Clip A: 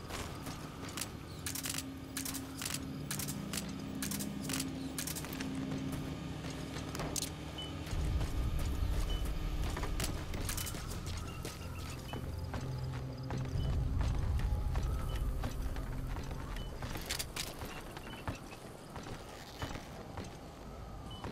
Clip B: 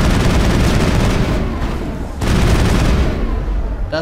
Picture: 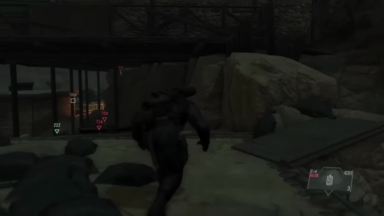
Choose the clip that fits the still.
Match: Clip A